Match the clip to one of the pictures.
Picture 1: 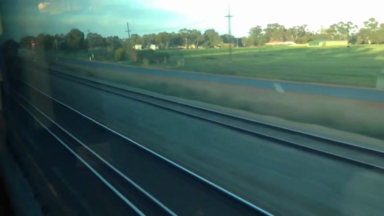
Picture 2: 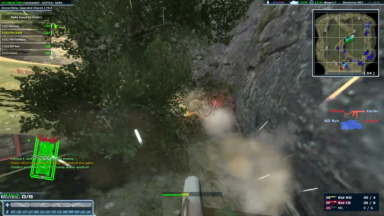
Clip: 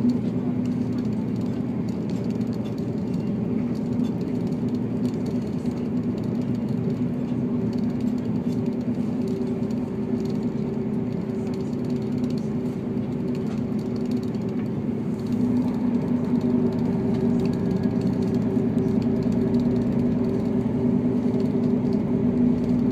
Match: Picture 1